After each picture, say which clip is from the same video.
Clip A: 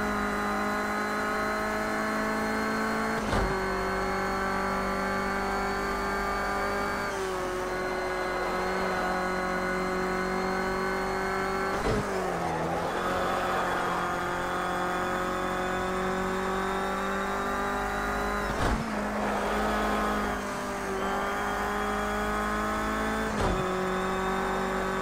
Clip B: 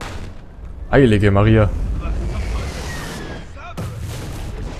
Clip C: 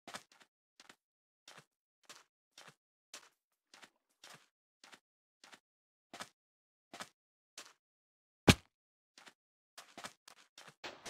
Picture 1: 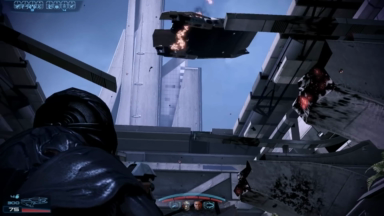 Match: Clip B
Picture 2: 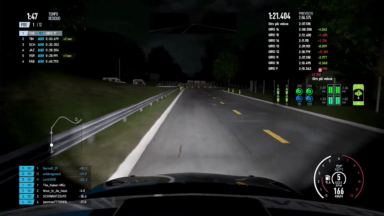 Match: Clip A